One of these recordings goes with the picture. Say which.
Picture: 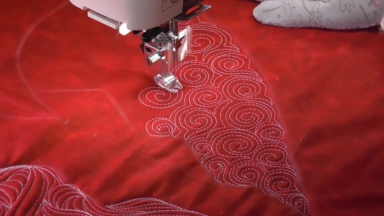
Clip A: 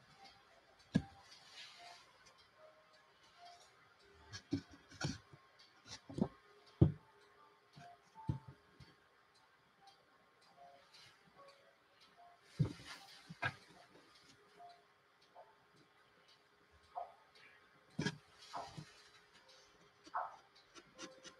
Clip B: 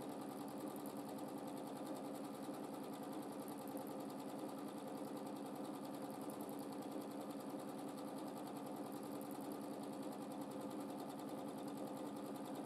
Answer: B